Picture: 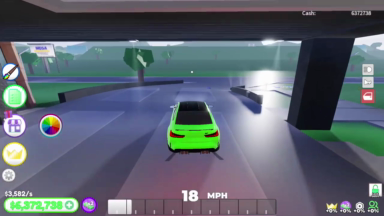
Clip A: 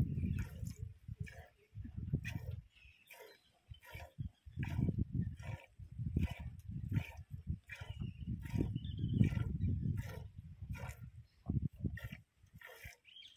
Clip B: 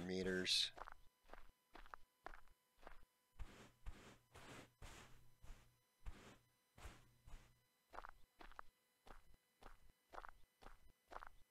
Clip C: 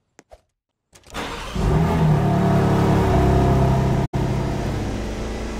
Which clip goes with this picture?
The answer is C